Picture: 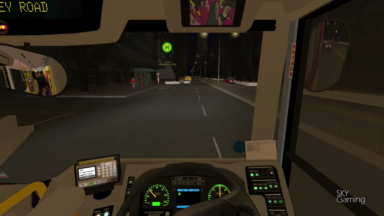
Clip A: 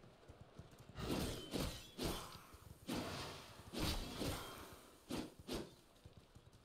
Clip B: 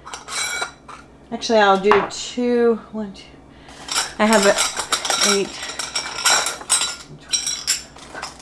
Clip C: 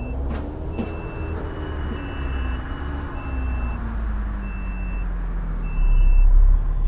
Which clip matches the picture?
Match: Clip C